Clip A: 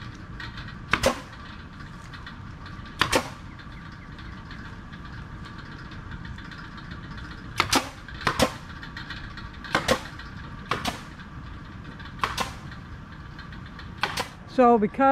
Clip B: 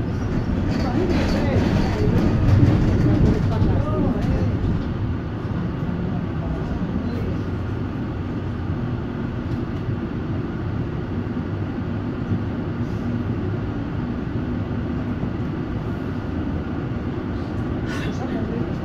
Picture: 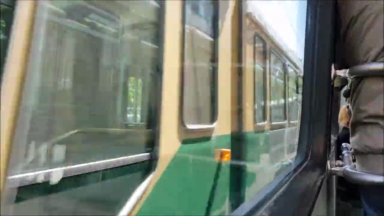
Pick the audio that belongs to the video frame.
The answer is B